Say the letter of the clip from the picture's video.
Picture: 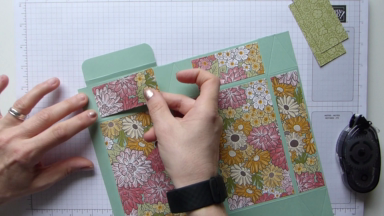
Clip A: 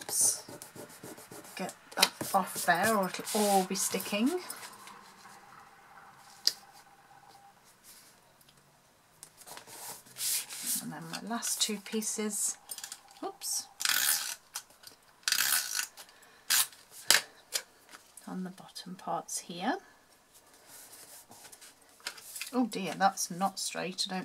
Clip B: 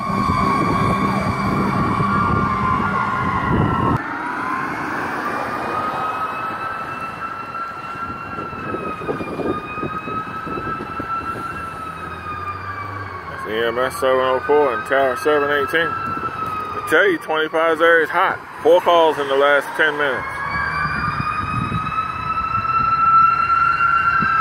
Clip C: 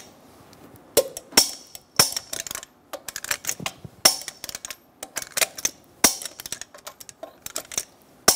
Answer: A